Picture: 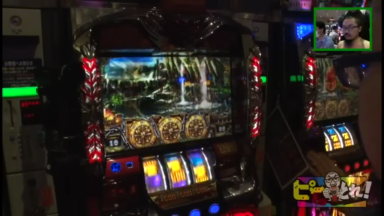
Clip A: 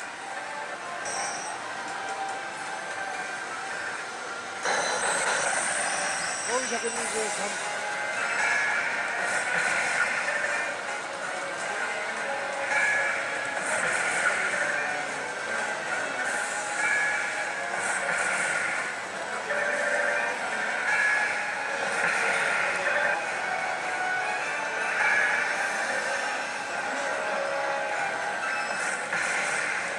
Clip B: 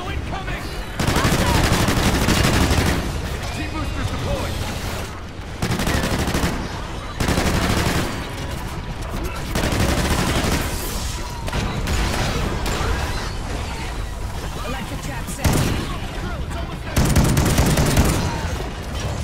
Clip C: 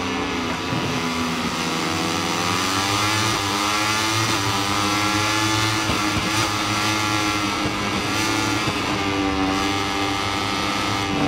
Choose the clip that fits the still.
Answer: A